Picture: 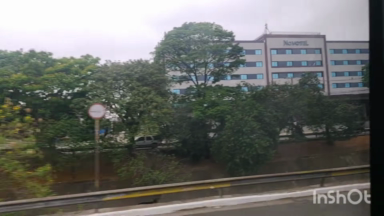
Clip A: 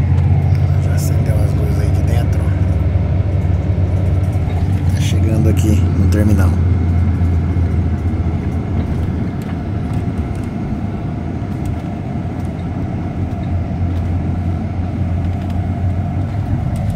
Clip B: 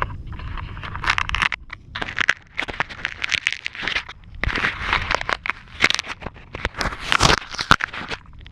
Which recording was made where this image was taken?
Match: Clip A